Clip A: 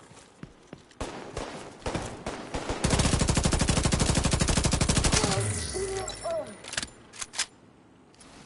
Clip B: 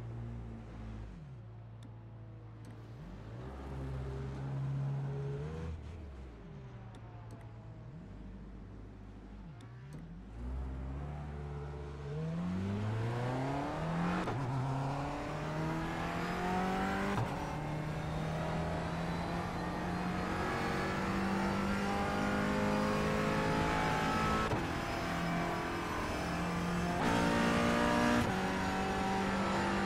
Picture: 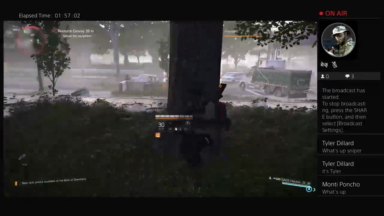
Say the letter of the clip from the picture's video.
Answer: A